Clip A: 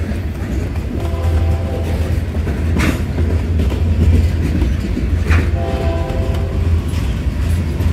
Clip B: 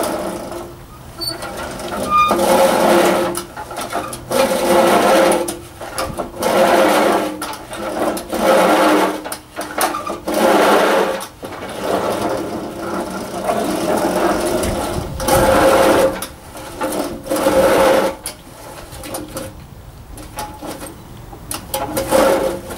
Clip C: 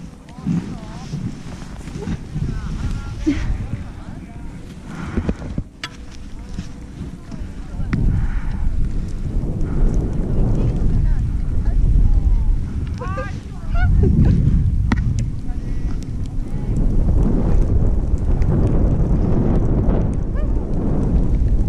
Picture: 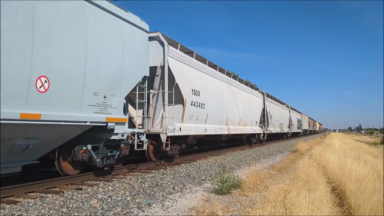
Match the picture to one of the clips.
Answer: A